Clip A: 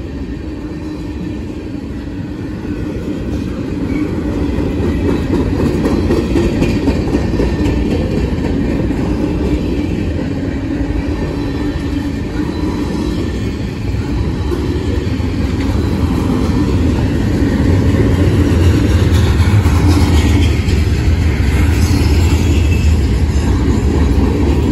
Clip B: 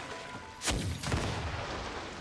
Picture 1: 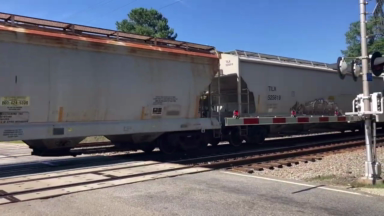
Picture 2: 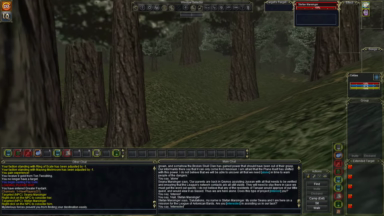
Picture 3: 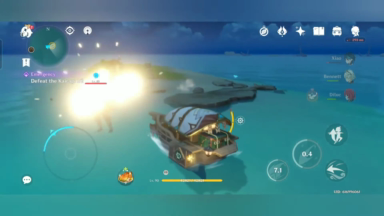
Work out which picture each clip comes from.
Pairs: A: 1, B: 3